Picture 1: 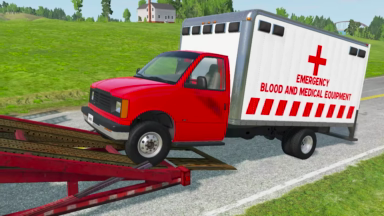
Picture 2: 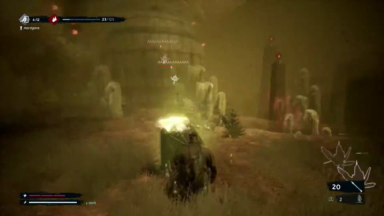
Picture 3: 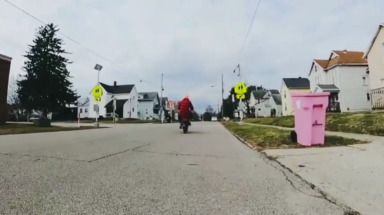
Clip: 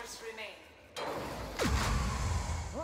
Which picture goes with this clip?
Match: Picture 2